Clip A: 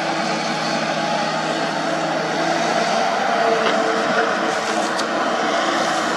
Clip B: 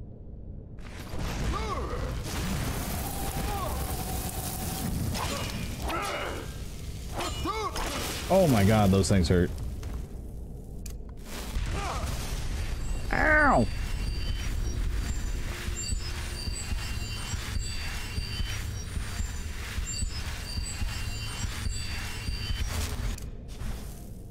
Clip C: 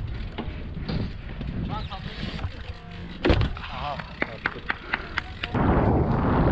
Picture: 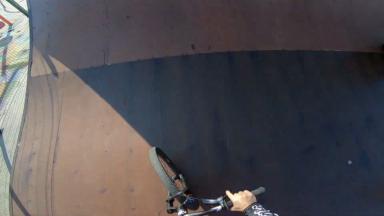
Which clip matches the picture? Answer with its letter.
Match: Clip C